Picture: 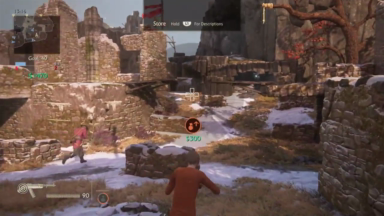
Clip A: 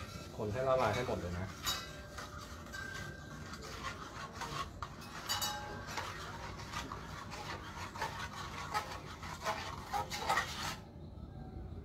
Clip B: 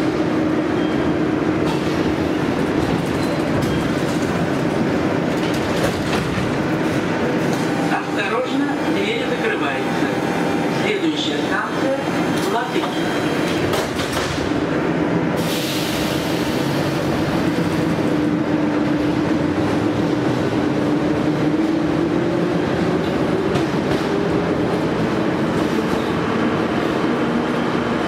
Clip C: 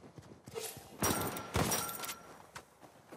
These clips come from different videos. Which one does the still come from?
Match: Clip C